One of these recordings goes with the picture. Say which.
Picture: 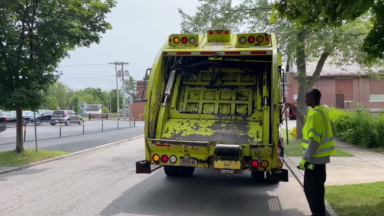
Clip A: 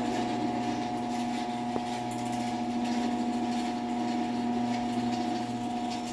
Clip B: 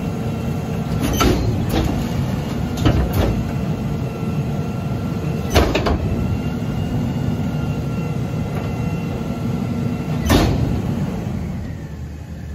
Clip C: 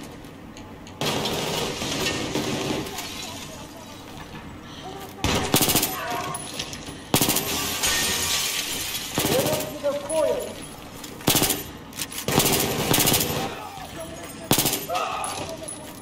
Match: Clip B